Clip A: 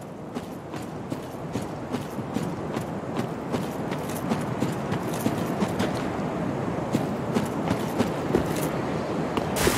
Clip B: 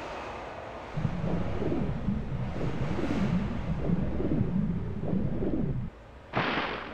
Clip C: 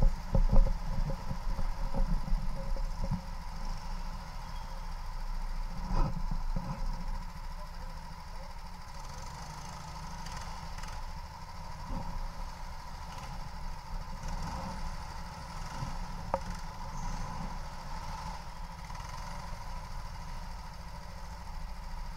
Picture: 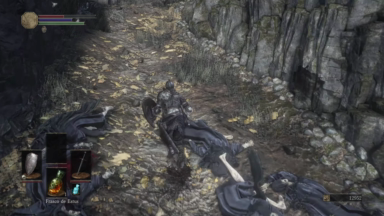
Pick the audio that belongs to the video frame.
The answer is A